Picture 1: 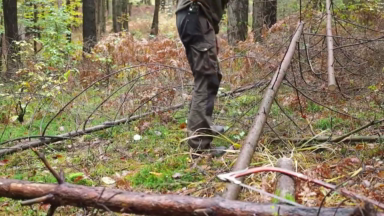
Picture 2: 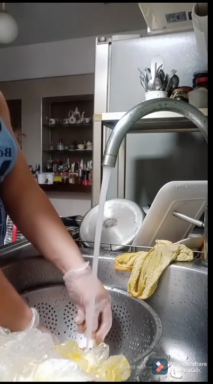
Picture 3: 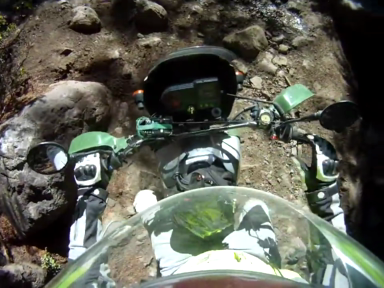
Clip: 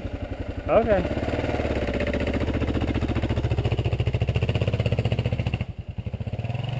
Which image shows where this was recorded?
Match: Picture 3